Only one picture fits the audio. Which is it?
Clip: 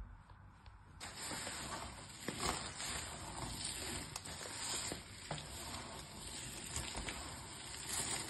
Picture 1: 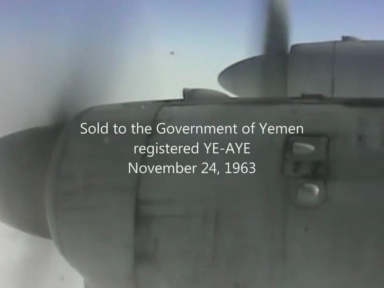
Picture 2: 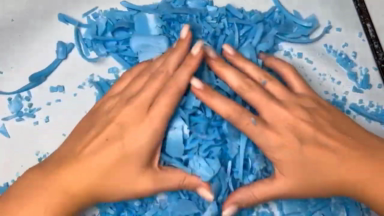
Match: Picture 2